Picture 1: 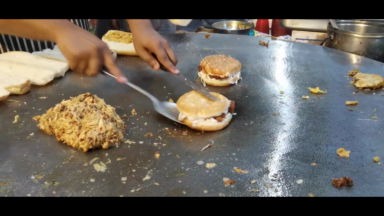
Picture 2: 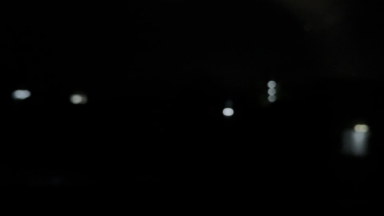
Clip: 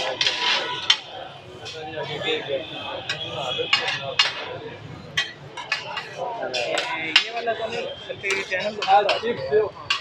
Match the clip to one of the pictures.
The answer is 1